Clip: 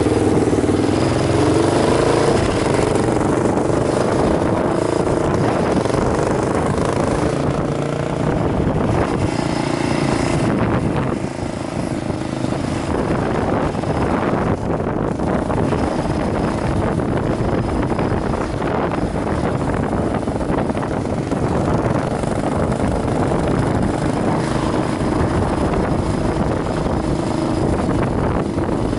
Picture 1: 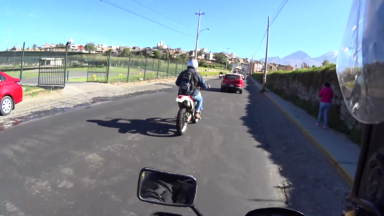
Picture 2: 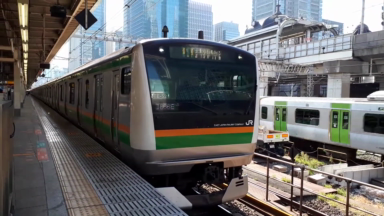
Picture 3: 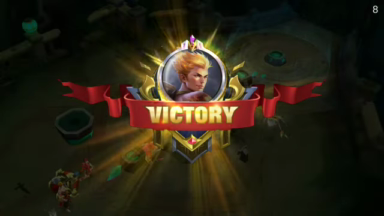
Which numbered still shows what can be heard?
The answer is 1